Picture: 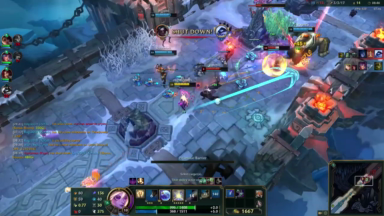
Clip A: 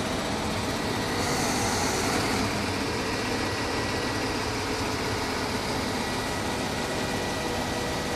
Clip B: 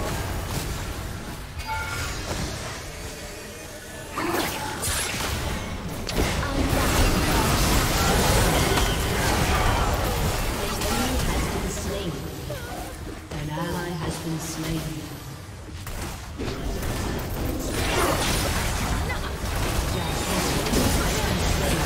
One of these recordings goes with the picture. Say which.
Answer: B